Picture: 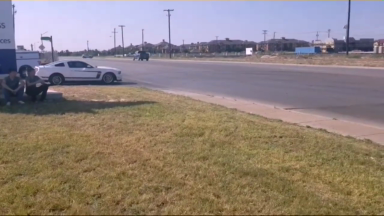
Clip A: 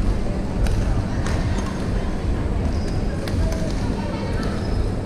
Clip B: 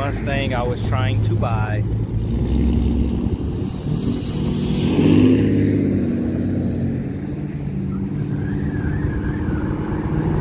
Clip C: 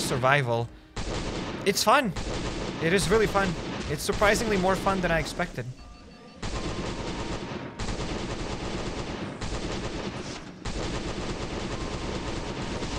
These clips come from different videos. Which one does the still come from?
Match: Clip B